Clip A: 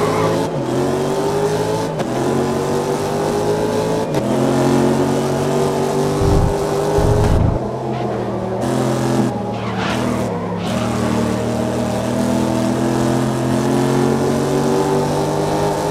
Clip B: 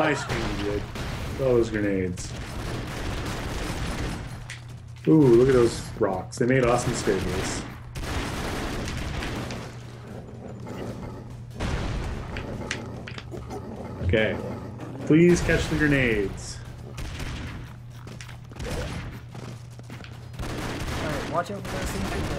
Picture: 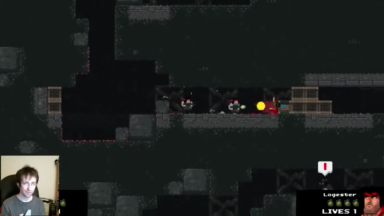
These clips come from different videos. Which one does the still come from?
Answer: B